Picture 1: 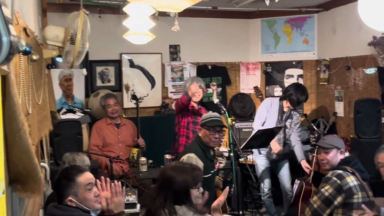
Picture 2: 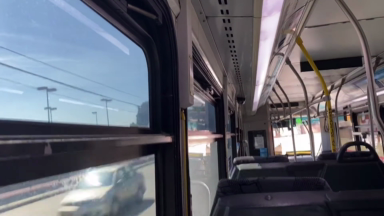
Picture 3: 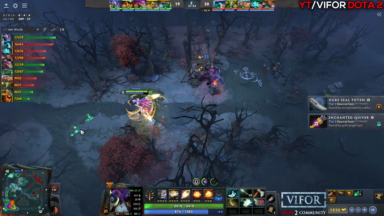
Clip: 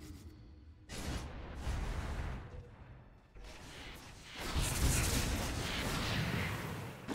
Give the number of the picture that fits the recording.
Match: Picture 3